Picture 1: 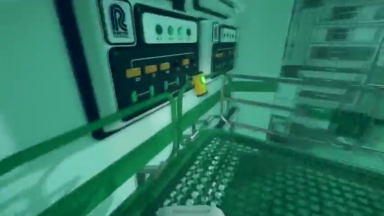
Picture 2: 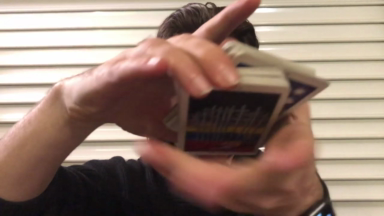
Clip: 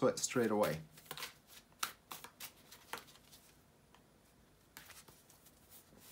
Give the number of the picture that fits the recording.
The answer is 2